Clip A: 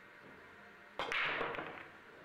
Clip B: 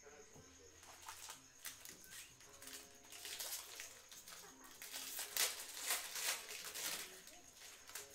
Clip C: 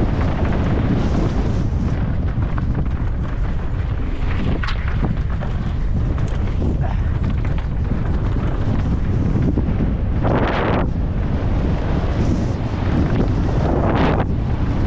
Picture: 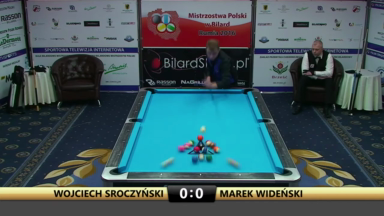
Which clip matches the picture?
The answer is A